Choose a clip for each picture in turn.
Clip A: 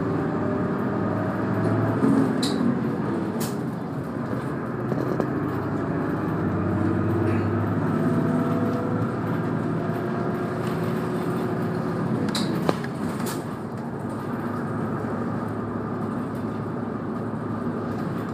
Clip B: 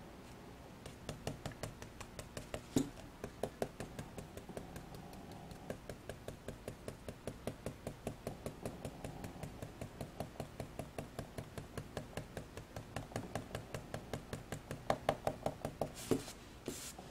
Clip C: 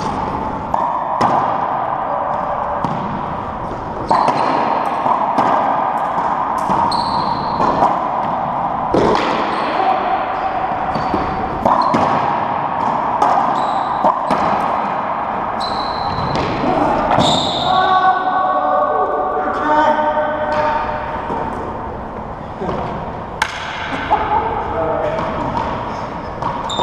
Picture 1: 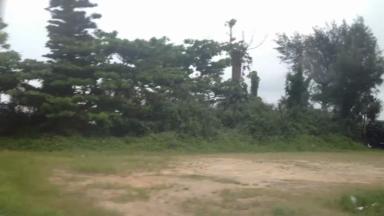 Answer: A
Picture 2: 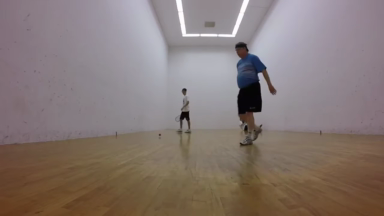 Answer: C